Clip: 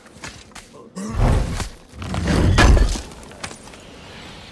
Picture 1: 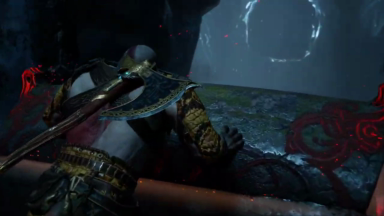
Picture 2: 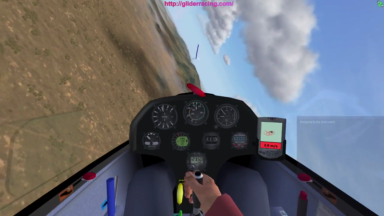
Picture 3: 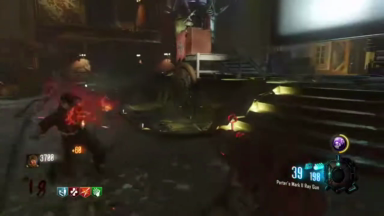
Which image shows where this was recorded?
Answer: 1